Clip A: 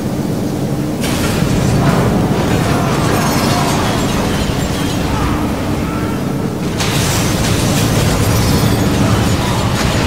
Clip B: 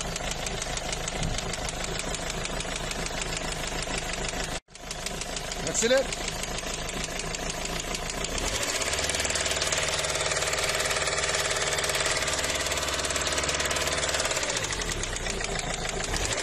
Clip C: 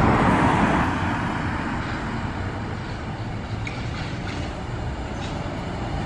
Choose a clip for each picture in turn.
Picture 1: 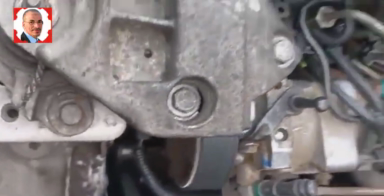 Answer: B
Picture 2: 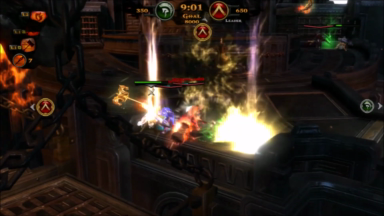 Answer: A